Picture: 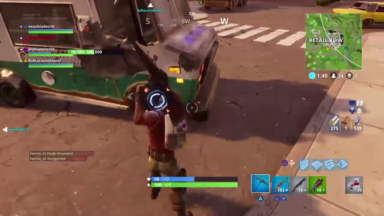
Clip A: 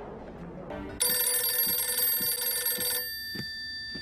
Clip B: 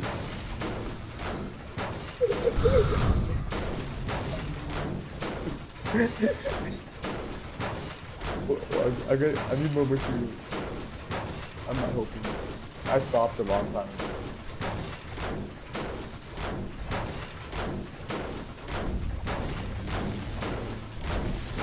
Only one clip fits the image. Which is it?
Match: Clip B